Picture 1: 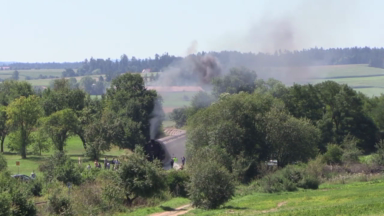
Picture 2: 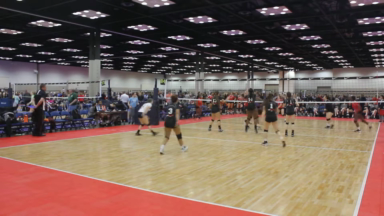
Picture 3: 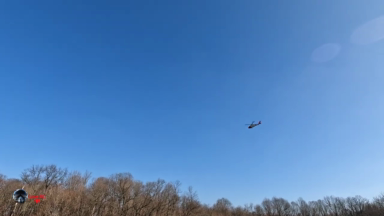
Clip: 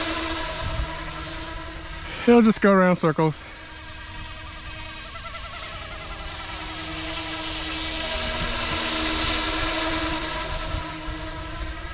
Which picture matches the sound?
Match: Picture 3